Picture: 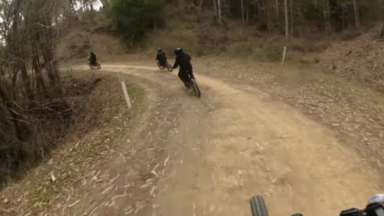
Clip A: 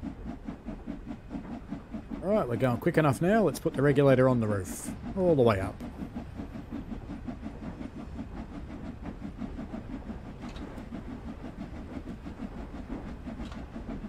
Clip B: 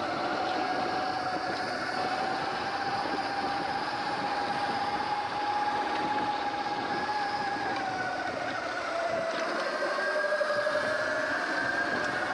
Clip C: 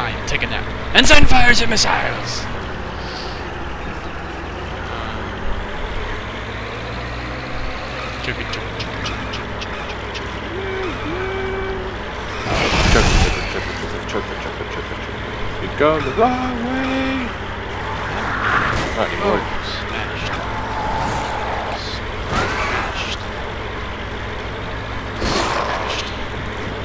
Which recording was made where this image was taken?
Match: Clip B